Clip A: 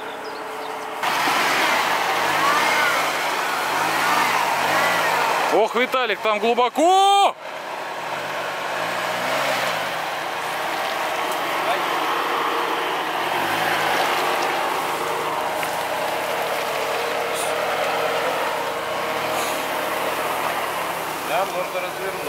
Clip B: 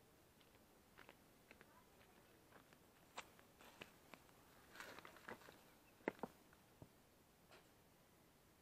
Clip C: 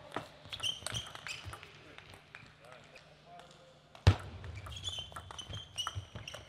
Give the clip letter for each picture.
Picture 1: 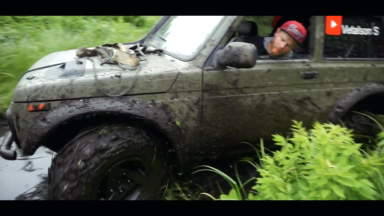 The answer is A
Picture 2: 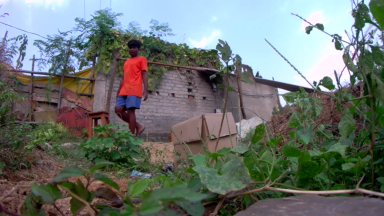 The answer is B